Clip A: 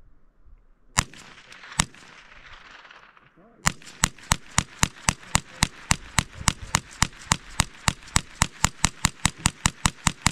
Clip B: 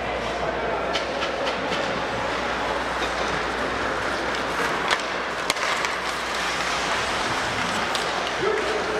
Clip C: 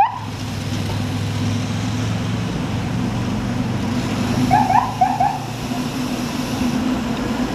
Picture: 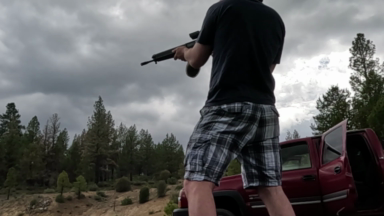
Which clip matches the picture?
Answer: A